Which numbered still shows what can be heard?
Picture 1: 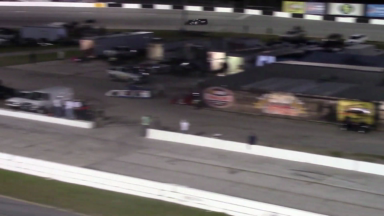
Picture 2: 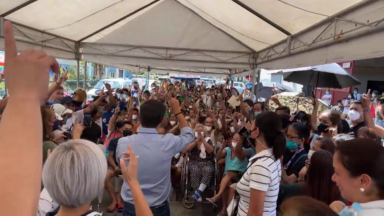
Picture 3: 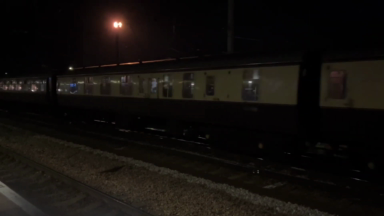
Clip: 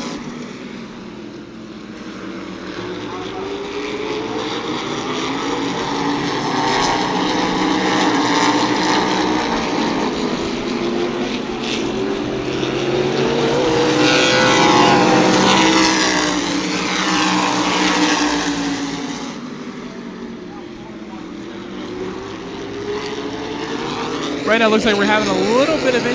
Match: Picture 1